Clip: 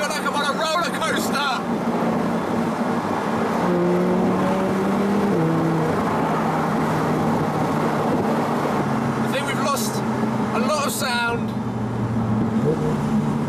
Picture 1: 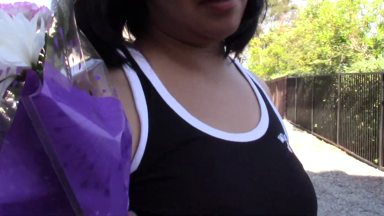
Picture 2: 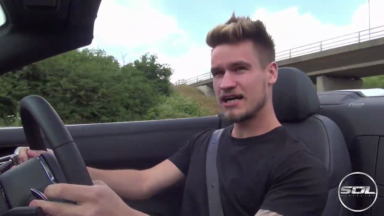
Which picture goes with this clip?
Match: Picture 2